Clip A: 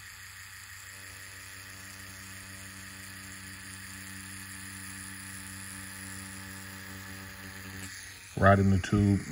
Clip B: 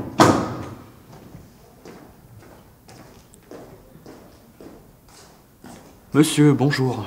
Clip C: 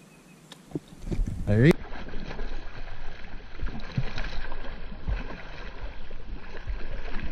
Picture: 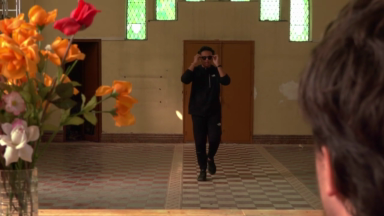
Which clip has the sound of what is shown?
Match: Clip B